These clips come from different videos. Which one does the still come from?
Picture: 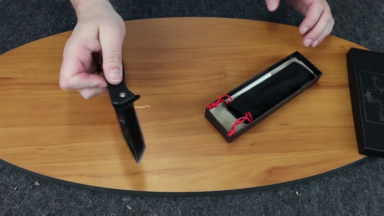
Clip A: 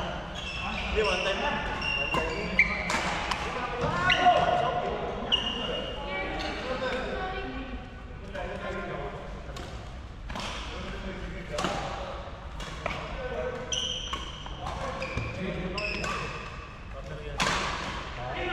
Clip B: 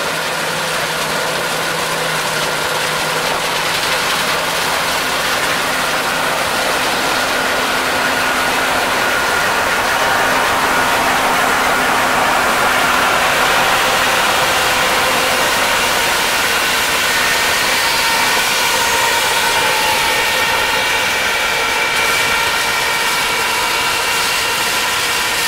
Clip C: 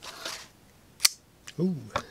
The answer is C